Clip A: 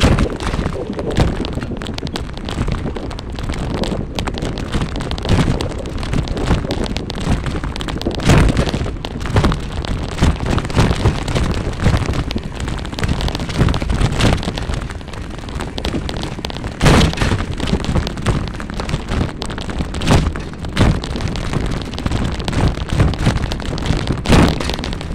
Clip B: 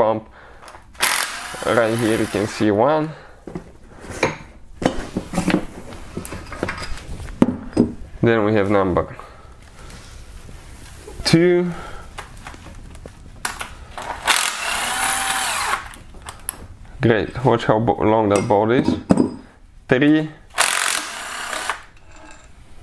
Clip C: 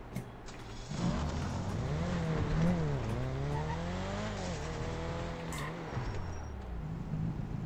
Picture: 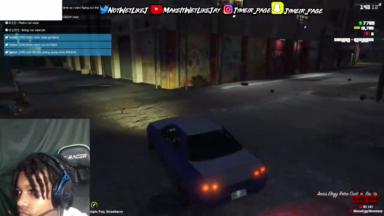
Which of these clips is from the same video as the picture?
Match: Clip C